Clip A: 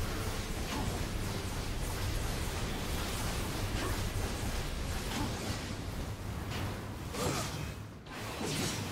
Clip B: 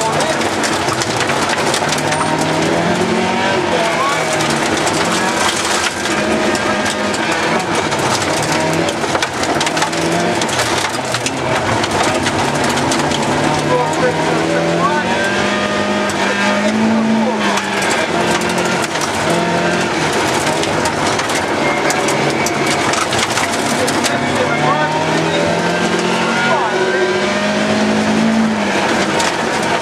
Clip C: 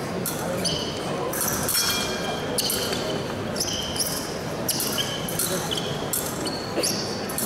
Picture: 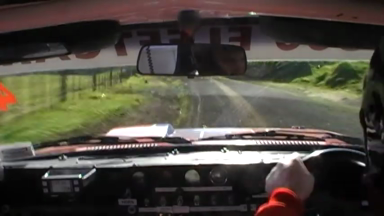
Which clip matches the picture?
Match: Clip B